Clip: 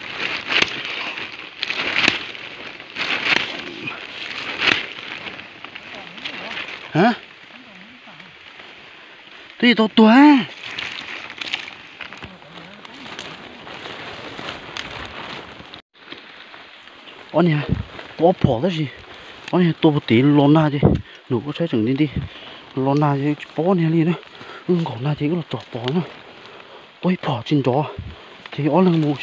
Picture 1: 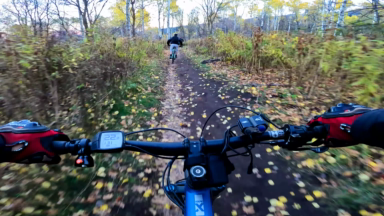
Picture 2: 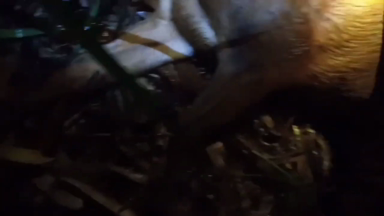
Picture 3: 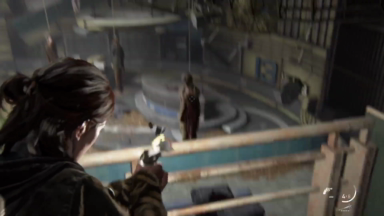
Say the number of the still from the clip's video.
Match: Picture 2